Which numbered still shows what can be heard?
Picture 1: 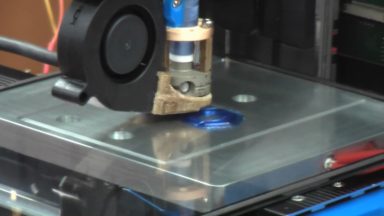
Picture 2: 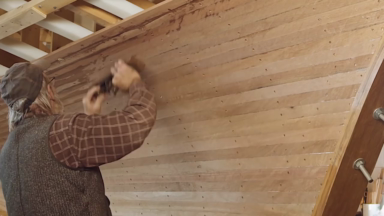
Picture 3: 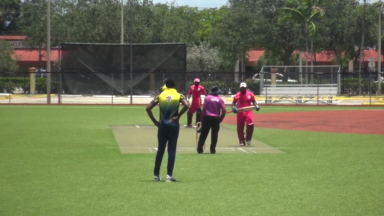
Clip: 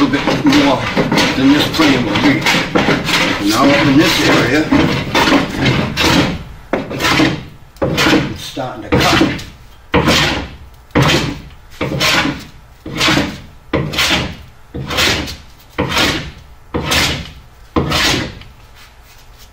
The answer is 2